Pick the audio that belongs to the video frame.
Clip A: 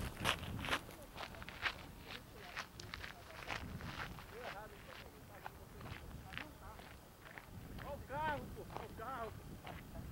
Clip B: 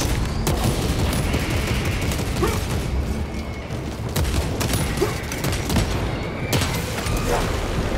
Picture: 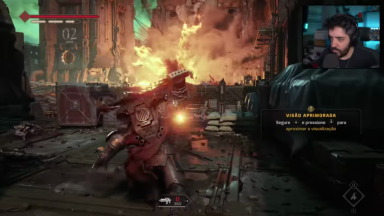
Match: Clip B